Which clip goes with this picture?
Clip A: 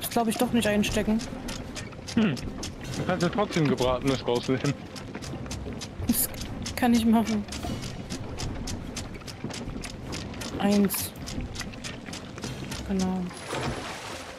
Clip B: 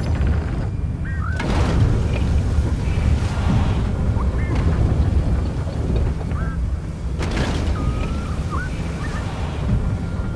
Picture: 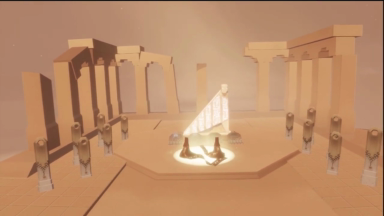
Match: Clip B